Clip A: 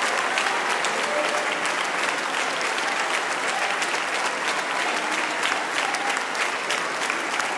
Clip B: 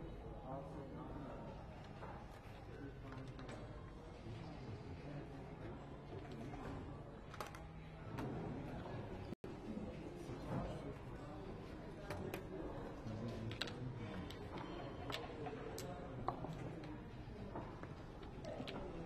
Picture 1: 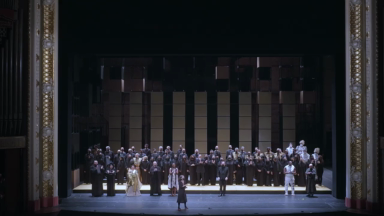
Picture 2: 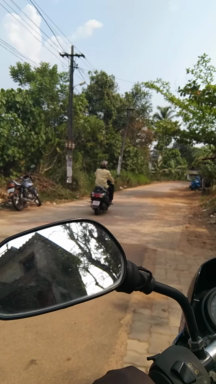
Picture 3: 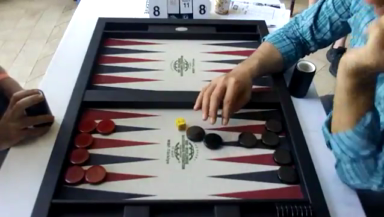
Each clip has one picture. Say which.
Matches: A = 1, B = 3